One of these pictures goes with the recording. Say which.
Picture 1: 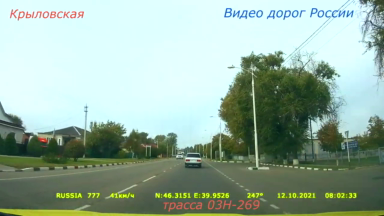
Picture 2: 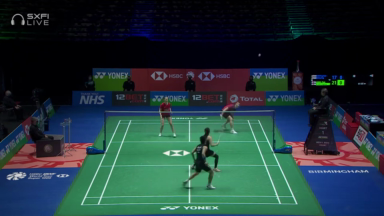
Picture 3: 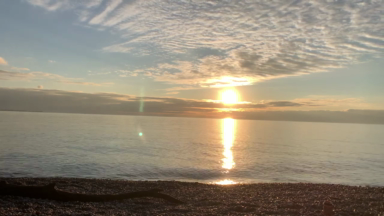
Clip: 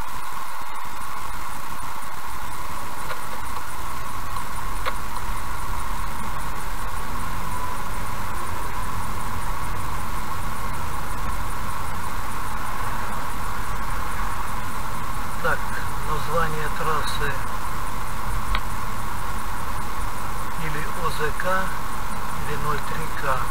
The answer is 1